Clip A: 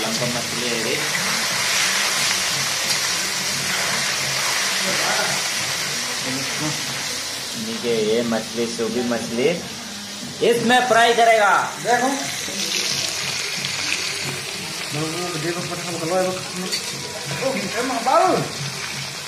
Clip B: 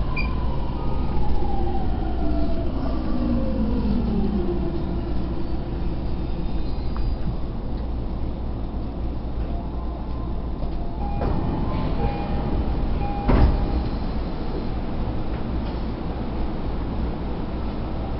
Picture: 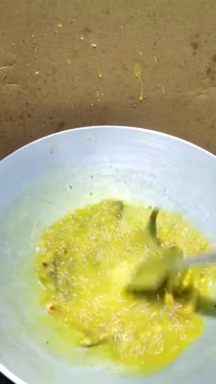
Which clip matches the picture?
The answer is A